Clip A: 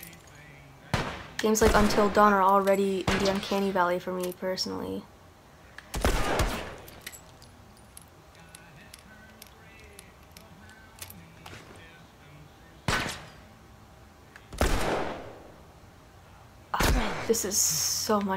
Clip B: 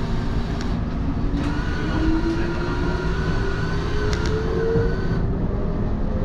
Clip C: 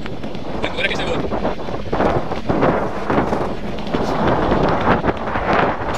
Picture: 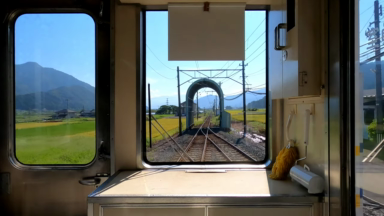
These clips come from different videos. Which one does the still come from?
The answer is B